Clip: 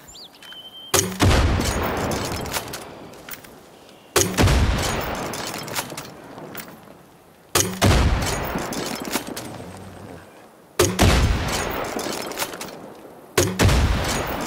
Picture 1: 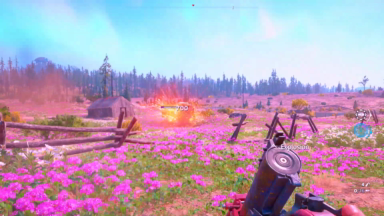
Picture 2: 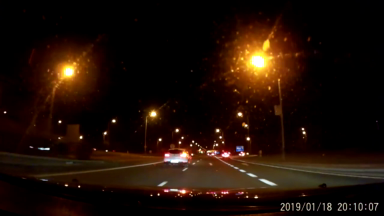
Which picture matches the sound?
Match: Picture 1